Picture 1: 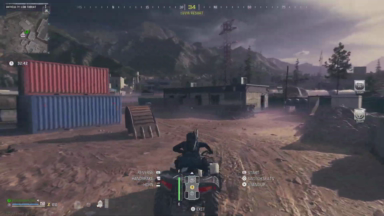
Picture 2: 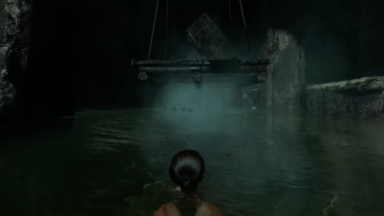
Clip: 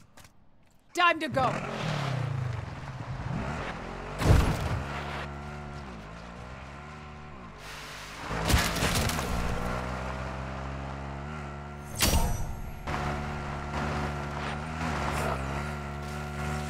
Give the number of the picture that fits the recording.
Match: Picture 1